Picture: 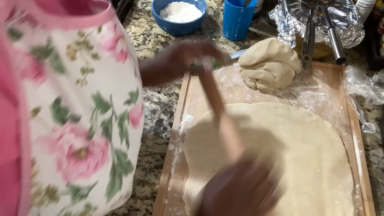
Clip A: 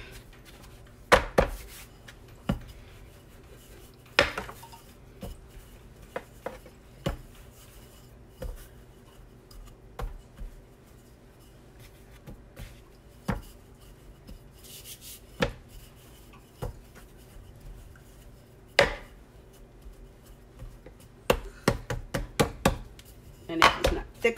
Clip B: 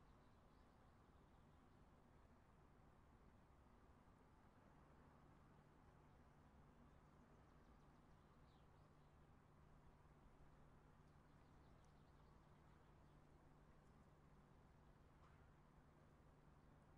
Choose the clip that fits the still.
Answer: A